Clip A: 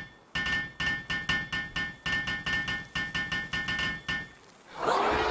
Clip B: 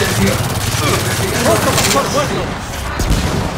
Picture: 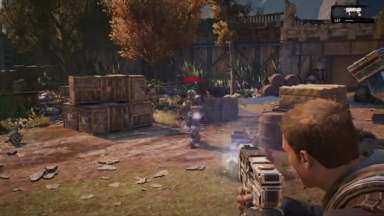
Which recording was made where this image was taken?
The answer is B